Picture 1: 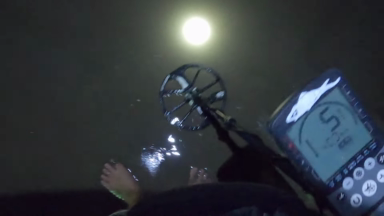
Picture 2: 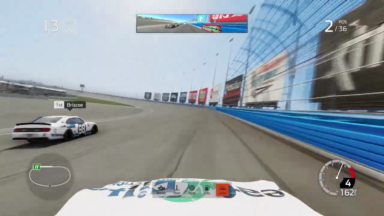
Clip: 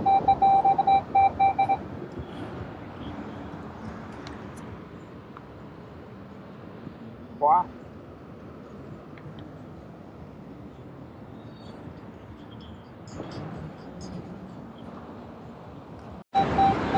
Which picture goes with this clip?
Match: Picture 1